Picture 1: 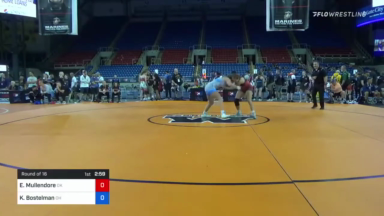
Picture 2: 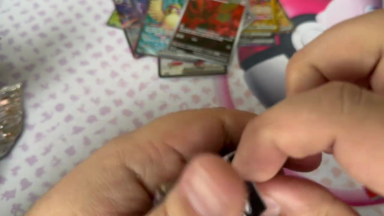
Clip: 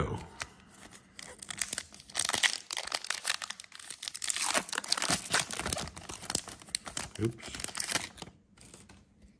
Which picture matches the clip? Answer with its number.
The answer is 2